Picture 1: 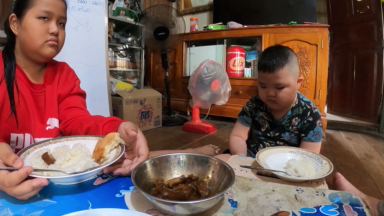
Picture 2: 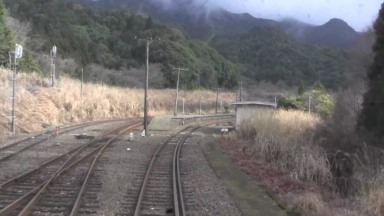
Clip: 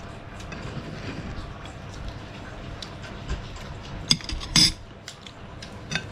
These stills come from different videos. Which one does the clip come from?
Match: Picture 1